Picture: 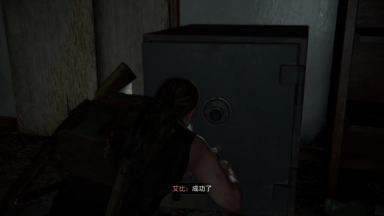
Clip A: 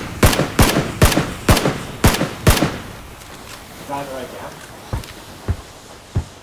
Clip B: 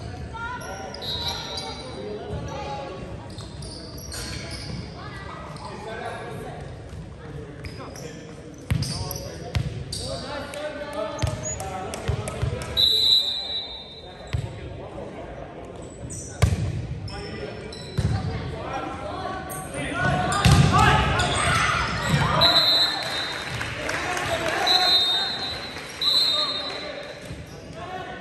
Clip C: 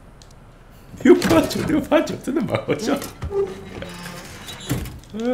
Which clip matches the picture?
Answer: C